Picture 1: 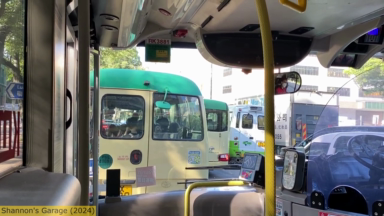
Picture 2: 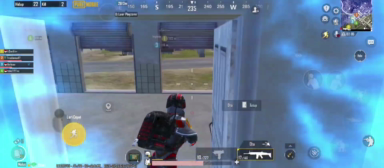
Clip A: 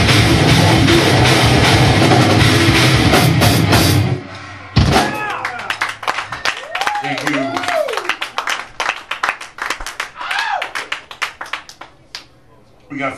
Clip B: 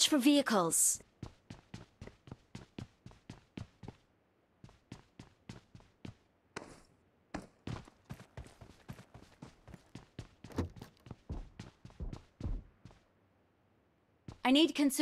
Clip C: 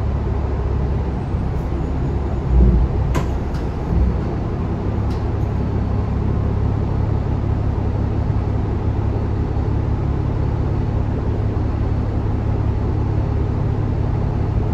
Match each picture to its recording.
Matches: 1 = C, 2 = B